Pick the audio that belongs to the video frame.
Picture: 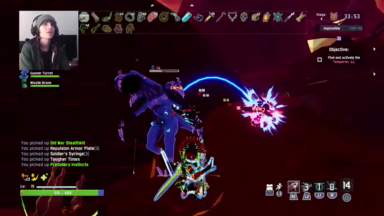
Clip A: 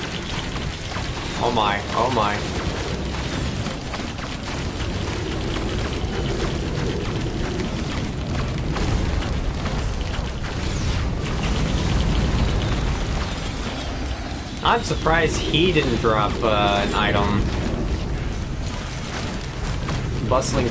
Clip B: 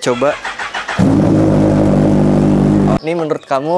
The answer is A